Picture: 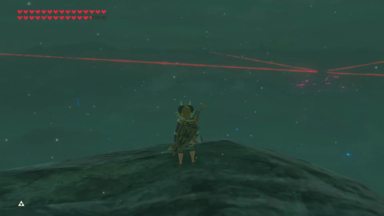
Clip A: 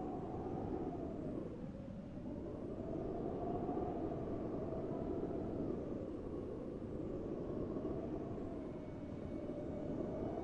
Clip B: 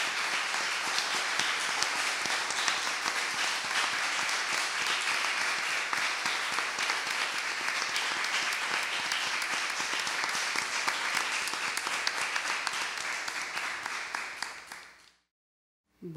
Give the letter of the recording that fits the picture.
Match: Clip A